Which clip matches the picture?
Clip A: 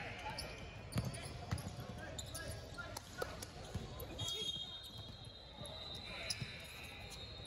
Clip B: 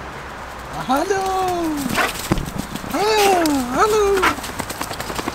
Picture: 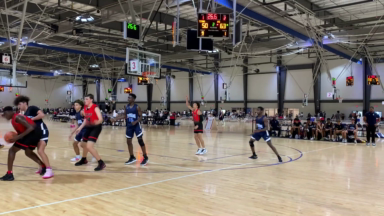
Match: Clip A